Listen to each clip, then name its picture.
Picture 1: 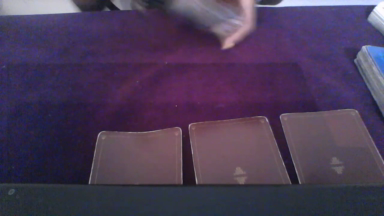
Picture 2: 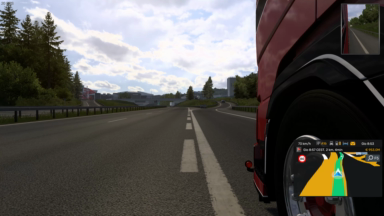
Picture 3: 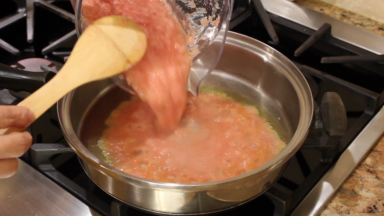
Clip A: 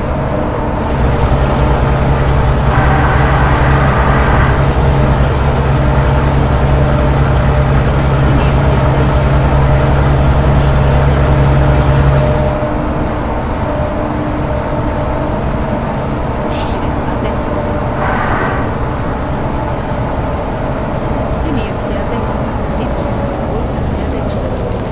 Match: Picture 2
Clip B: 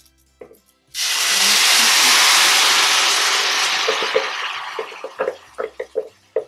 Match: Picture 3